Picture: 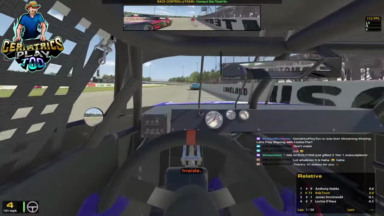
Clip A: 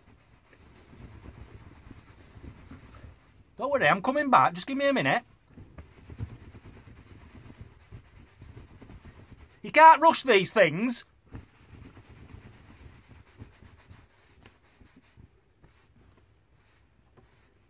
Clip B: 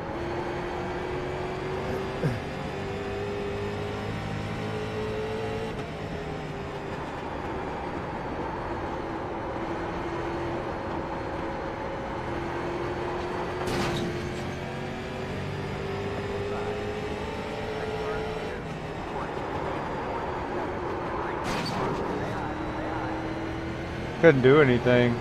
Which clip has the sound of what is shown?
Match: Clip B